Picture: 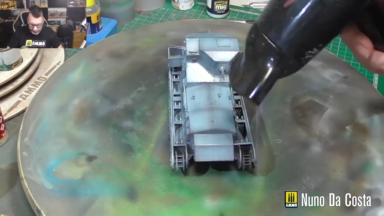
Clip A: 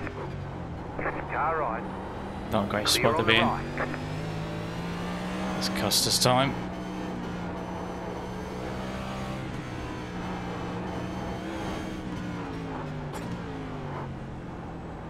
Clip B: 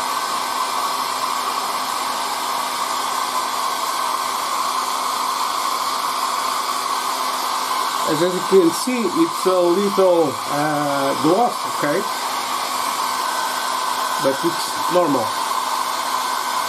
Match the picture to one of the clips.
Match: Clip B